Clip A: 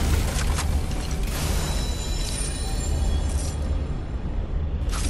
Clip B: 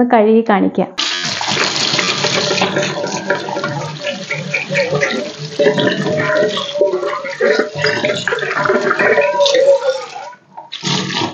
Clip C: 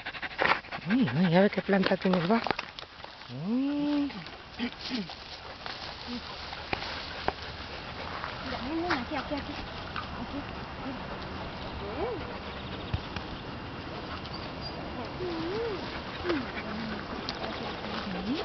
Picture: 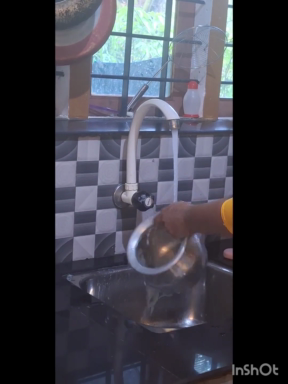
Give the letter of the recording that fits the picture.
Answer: B